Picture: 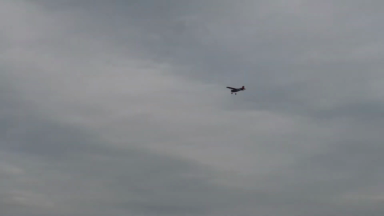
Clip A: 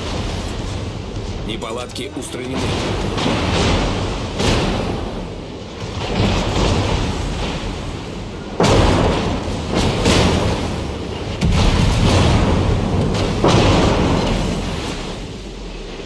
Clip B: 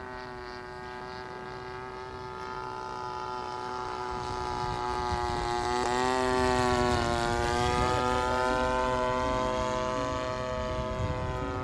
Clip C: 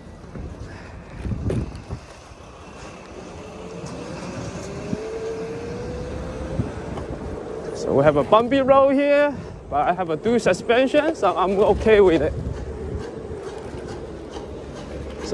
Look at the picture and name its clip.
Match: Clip B